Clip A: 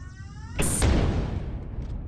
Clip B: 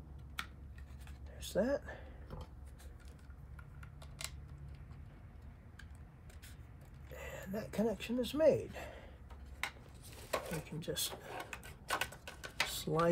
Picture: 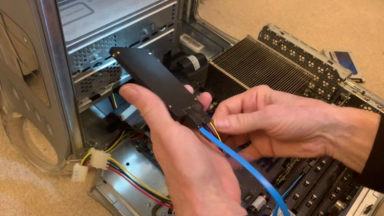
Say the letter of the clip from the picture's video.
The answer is B